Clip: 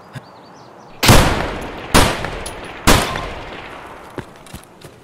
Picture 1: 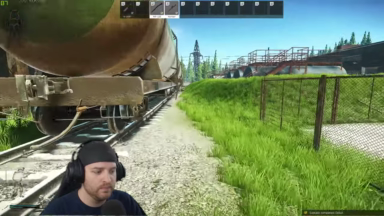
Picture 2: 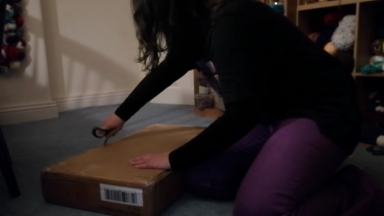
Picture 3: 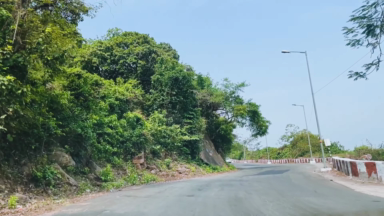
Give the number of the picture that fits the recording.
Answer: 1